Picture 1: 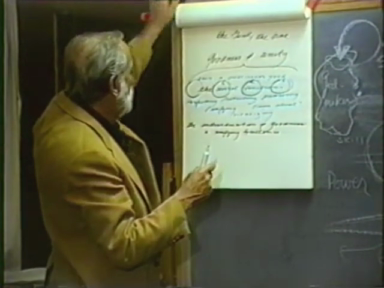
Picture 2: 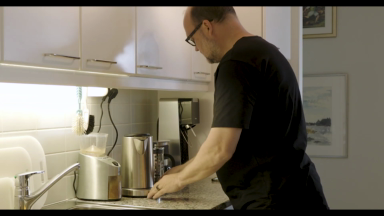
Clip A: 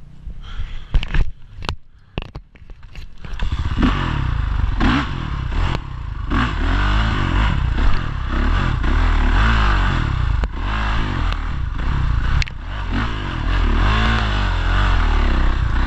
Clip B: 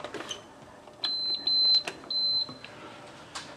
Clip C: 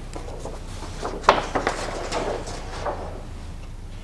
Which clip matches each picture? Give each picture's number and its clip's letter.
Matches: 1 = C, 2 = B